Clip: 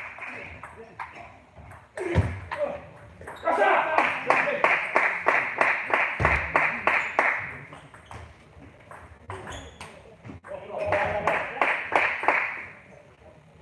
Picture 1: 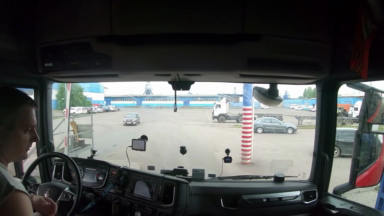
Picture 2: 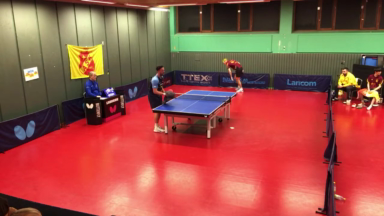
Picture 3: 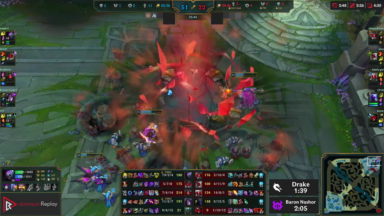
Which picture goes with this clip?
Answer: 2